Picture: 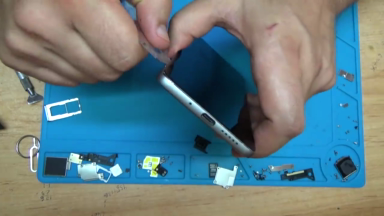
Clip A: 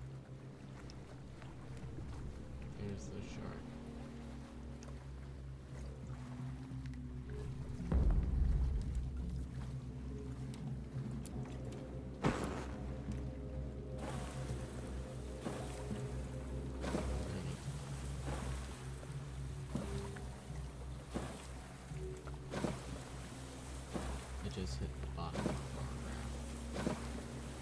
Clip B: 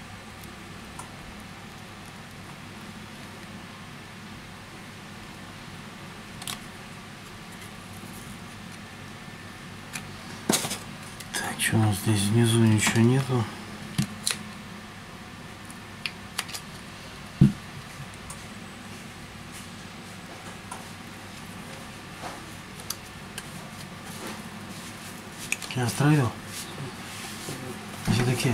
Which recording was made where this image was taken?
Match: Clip B